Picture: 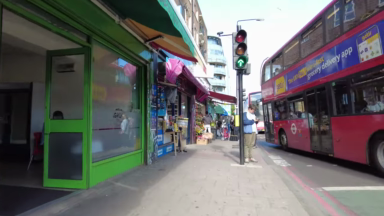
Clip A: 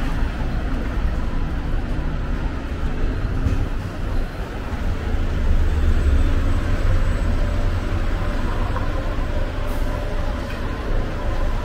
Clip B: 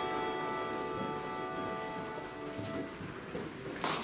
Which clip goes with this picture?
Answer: A